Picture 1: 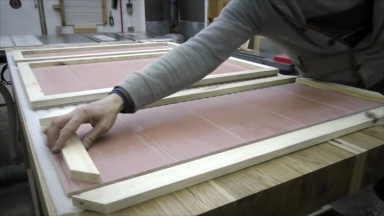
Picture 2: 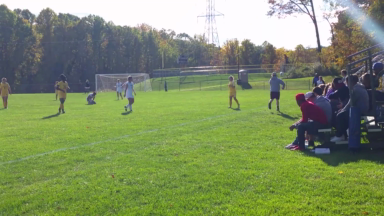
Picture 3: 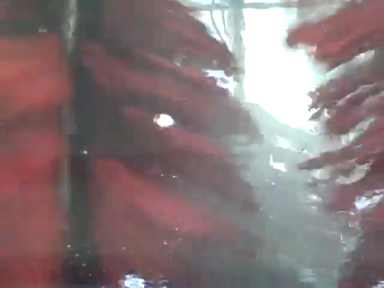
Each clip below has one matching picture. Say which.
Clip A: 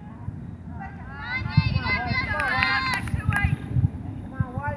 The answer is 2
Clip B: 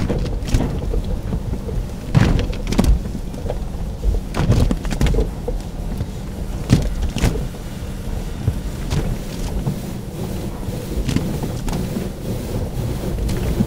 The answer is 3